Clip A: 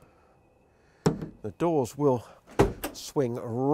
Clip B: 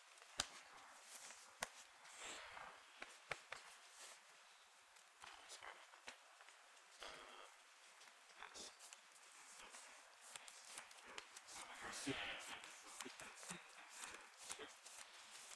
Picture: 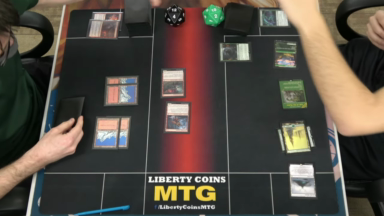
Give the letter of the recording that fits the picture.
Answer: B